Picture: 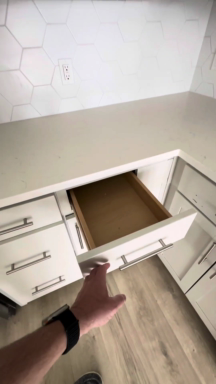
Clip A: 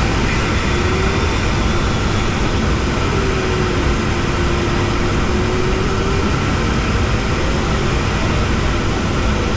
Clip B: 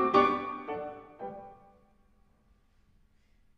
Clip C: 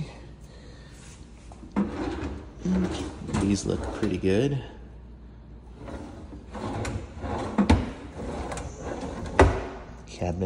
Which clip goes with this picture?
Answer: C